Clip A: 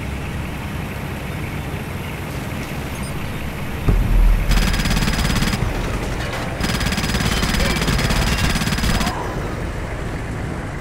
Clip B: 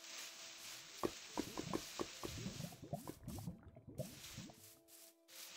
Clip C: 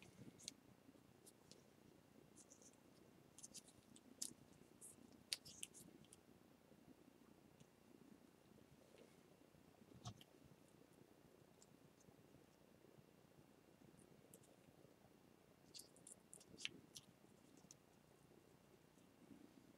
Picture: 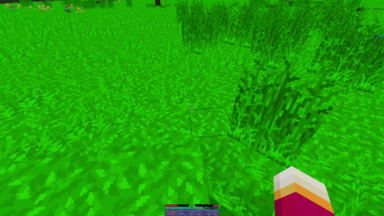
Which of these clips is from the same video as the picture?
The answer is B